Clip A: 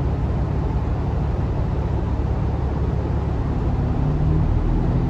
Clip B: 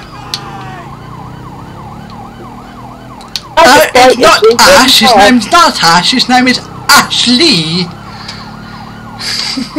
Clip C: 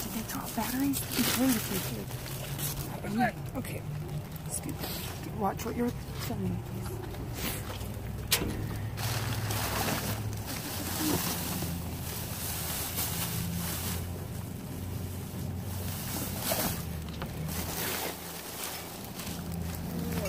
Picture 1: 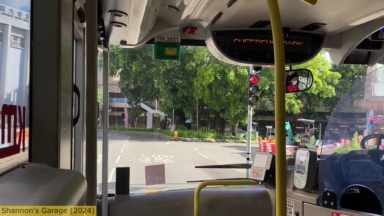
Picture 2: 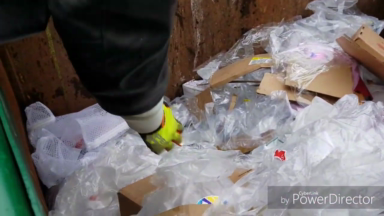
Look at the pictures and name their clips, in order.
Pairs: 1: A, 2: C